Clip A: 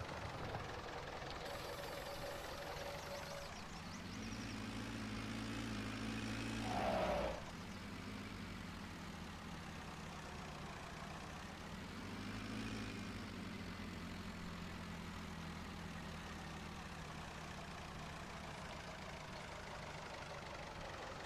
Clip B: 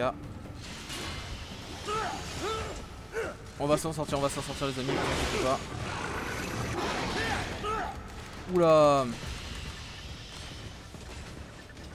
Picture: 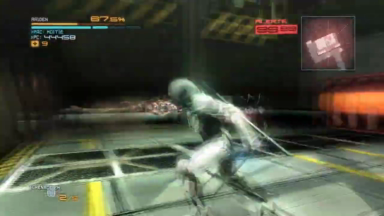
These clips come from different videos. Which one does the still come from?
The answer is B